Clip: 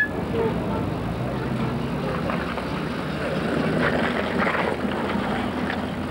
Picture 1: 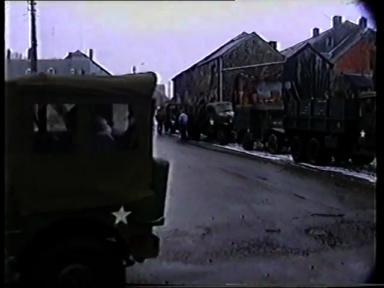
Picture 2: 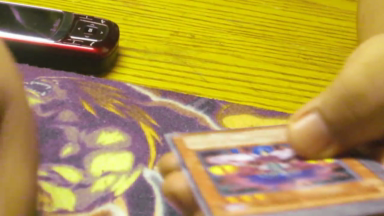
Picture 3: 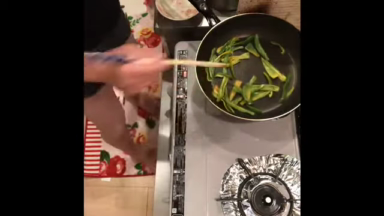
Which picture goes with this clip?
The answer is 1